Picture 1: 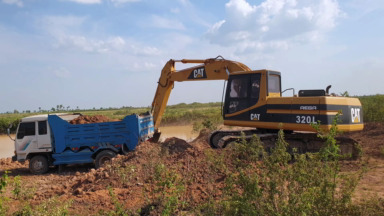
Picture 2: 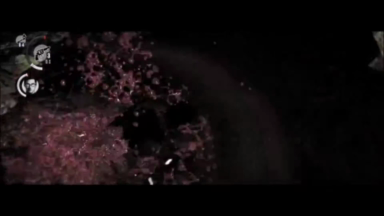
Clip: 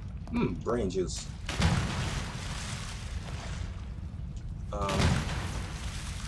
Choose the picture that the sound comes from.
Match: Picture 2